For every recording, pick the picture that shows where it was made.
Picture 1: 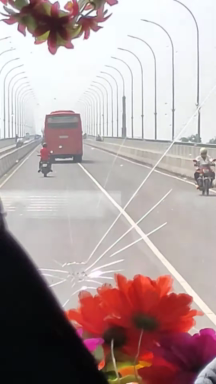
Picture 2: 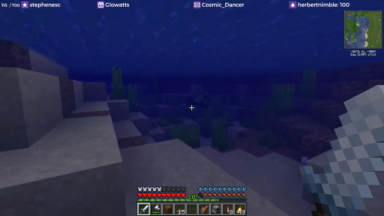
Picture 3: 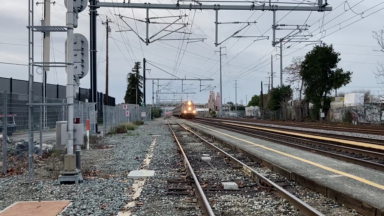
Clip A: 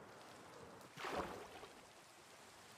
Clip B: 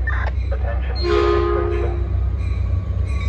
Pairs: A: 2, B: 3